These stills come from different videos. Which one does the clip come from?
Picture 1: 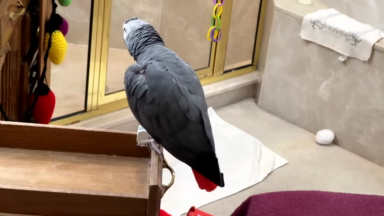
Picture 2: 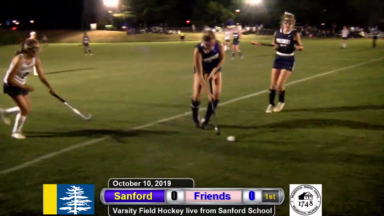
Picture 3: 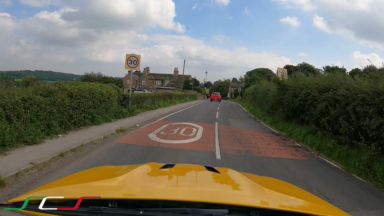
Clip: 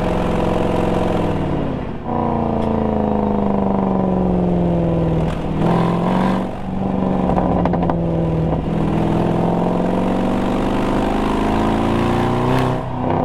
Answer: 3